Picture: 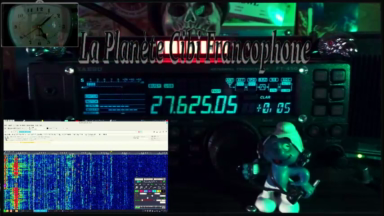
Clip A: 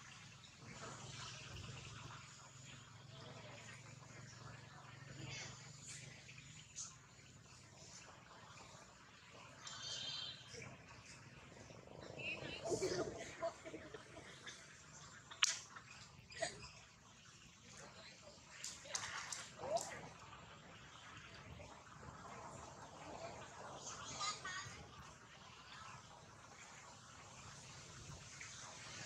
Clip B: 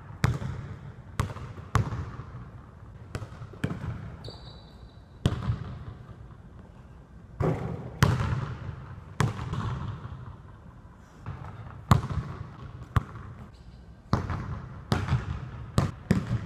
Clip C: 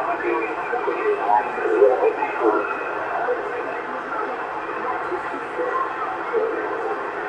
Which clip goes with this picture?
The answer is C